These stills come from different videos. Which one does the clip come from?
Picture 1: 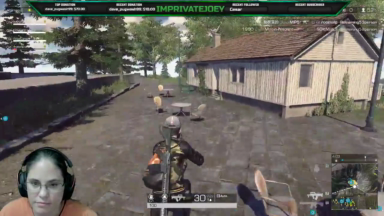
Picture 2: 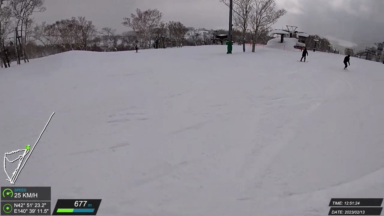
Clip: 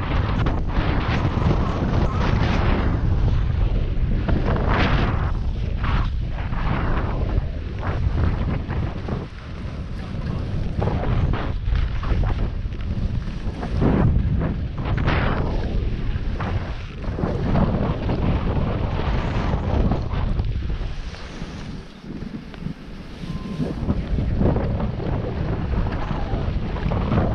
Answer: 2